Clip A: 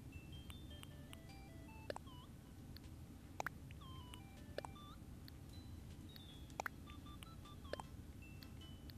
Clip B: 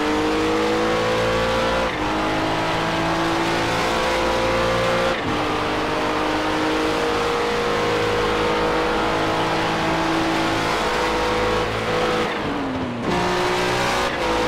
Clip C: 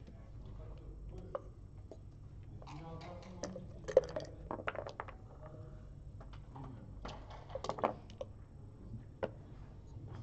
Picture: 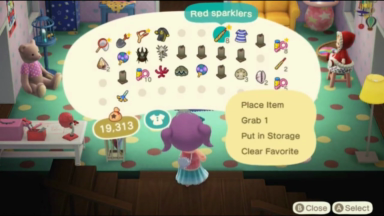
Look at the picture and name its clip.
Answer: A